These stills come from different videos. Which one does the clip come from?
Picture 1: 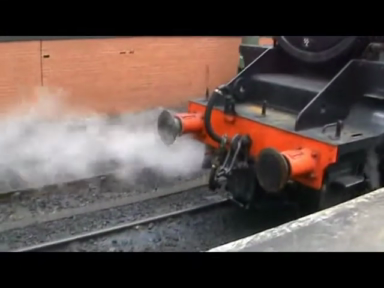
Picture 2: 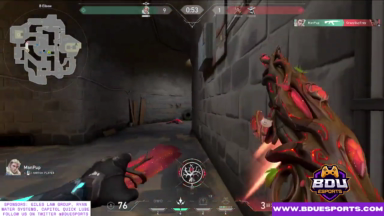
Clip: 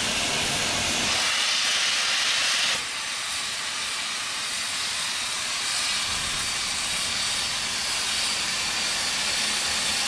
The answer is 1